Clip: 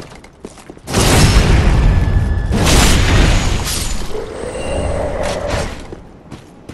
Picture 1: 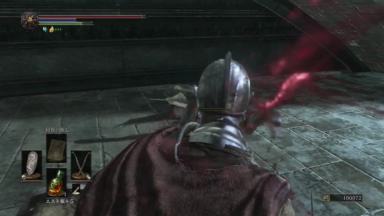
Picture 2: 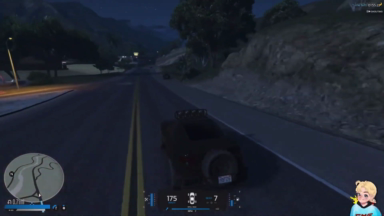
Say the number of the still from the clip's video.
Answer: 1